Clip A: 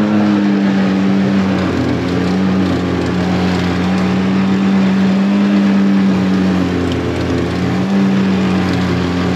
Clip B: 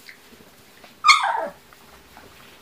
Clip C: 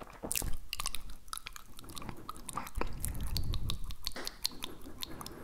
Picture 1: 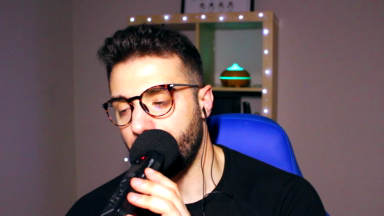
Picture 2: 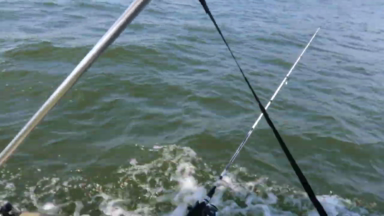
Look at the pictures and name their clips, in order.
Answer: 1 C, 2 A